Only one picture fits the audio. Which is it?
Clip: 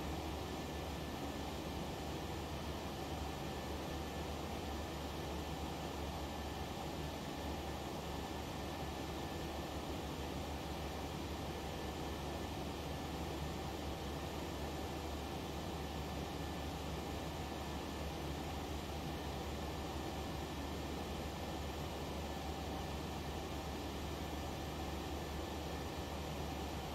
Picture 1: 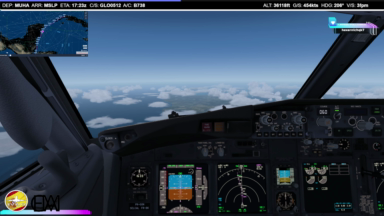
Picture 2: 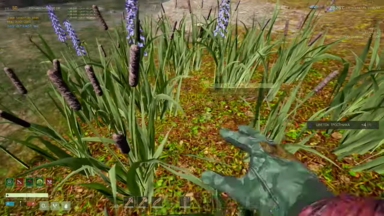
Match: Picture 1